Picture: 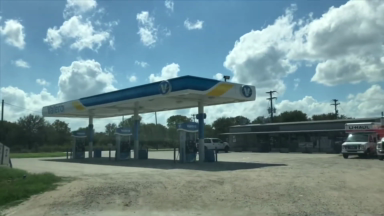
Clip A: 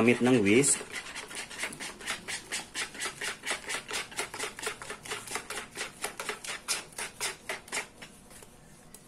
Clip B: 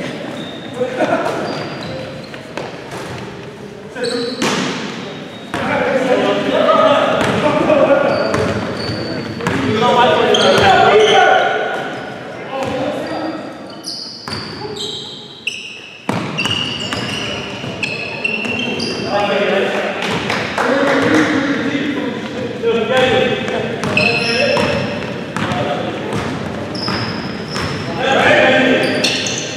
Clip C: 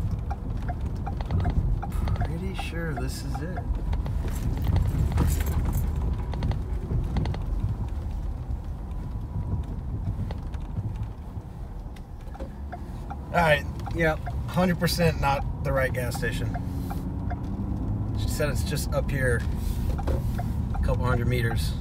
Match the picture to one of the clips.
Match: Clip C